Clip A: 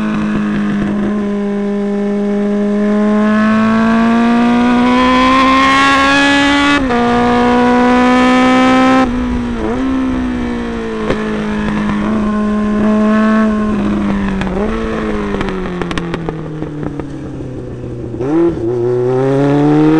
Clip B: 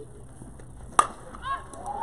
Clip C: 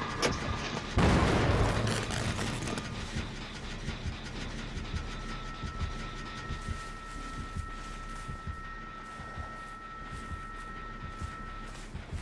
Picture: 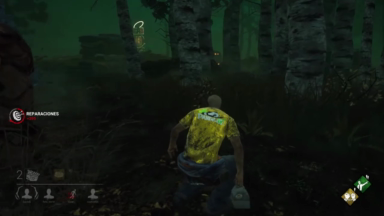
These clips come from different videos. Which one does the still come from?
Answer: C